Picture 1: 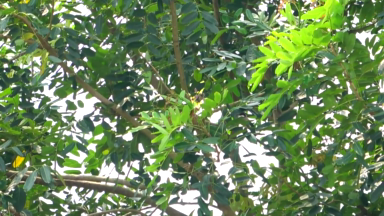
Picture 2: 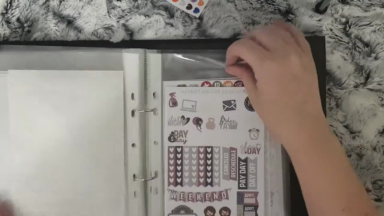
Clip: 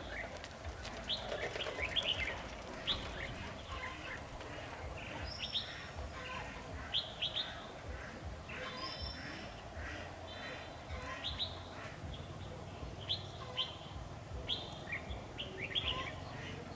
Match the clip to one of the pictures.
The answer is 1